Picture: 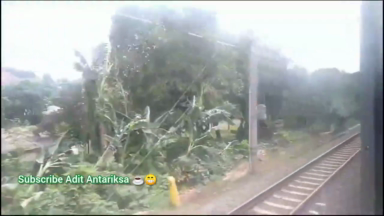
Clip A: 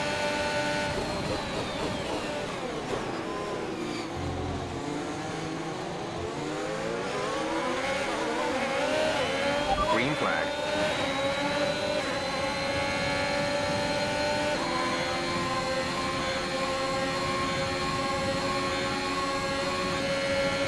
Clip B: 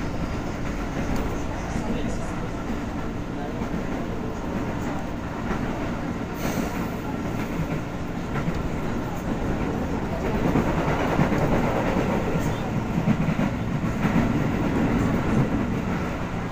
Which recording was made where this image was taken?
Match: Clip B